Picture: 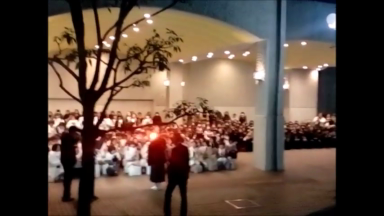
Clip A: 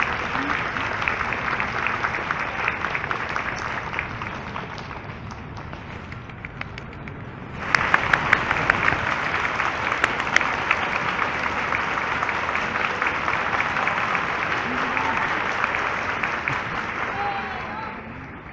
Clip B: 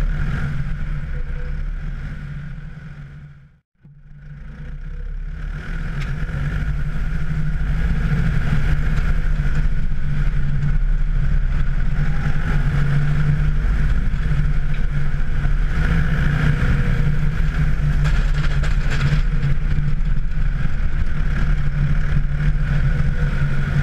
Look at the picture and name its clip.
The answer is A